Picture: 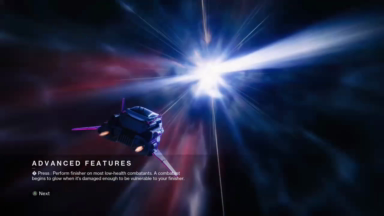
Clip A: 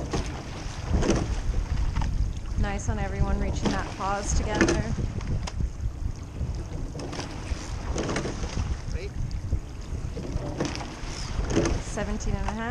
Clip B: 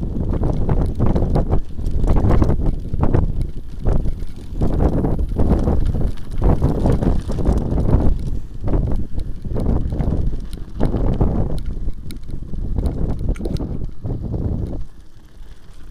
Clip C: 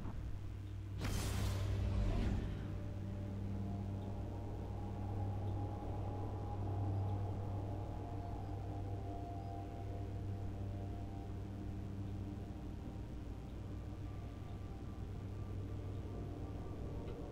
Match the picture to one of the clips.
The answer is C